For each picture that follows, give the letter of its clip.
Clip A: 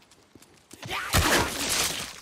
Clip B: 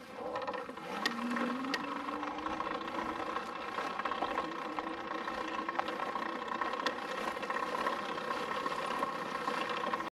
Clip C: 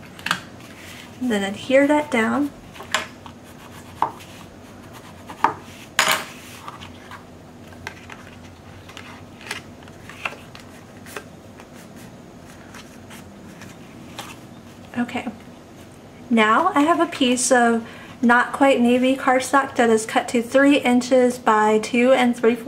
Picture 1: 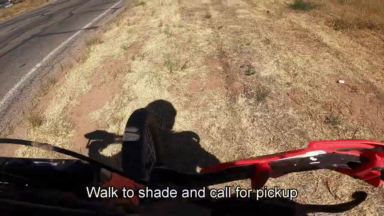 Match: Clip B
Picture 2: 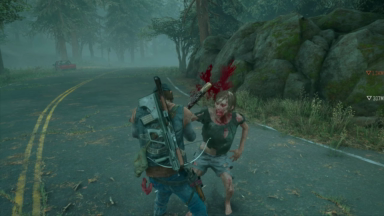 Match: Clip A